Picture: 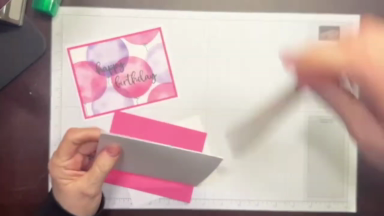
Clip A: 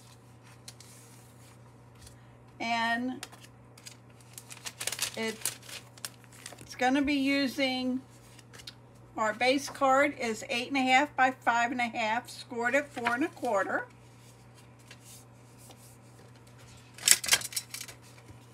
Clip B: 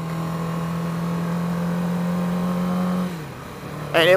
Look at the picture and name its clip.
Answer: A